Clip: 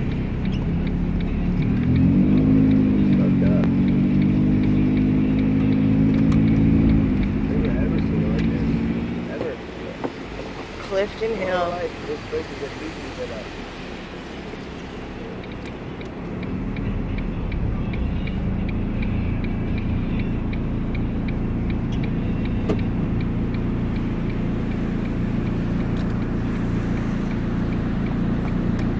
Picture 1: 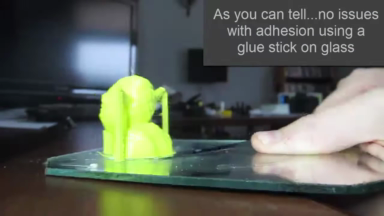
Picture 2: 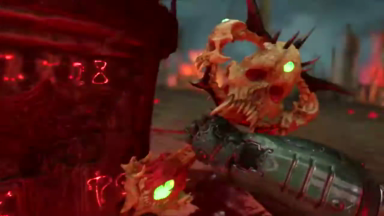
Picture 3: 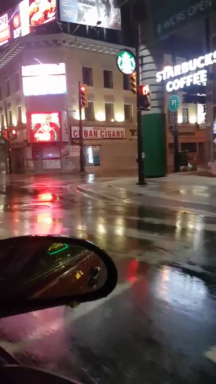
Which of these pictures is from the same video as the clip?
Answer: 3